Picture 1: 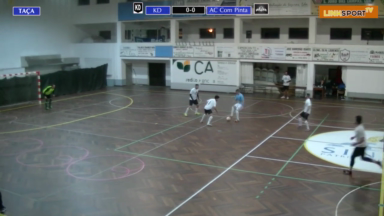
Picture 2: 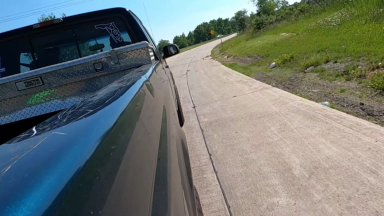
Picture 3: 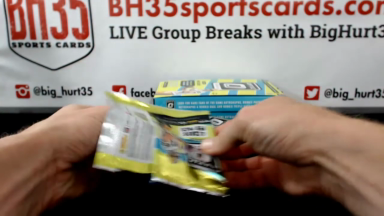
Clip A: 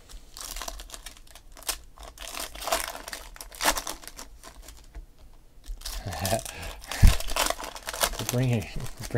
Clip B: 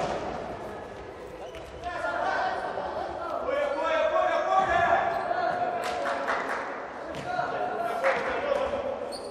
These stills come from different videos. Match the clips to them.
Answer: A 3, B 1